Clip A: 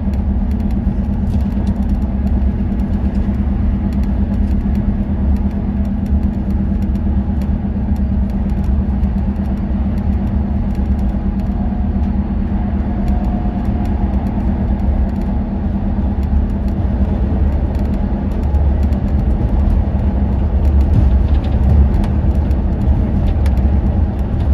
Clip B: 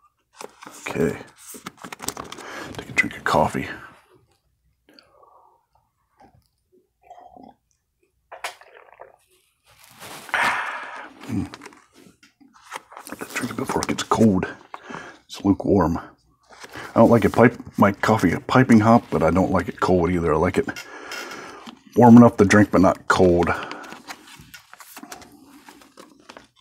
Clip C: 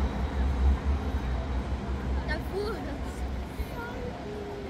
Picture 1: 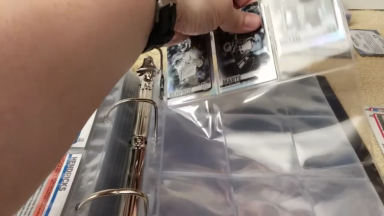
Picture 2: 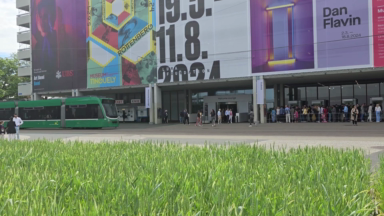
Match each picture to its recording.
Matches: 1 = B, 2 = C